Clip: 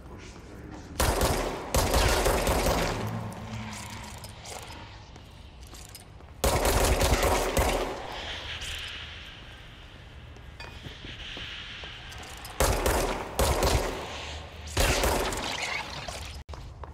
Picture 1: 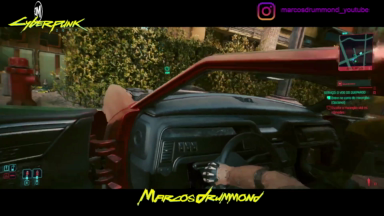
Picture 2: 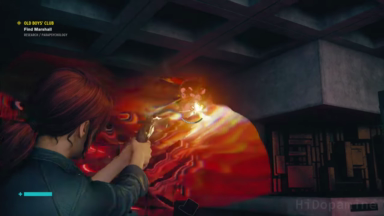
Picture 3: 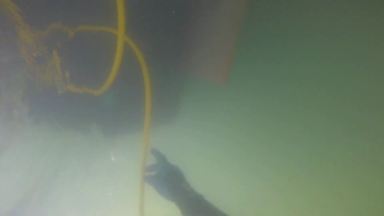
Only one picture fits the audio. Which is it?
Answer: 2